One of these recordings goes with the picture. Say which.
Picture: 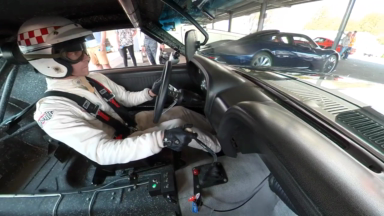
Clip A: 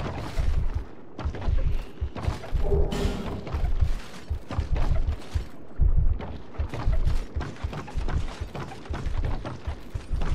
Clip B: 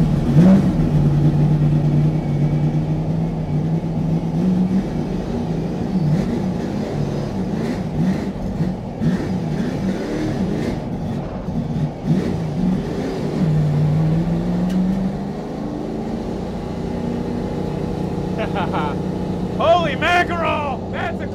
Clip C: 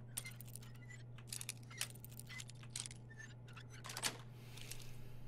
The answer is B